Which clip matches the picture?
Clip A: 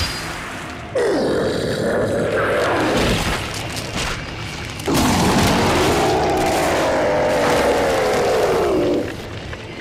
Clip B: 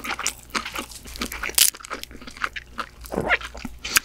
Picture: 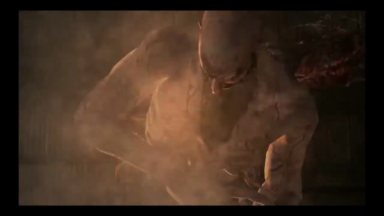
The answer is A